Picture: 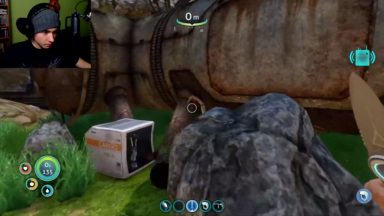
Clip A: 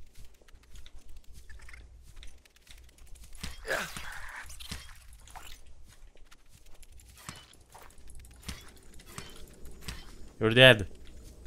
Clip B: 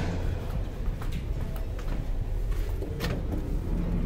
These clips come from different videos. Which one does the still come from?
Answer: A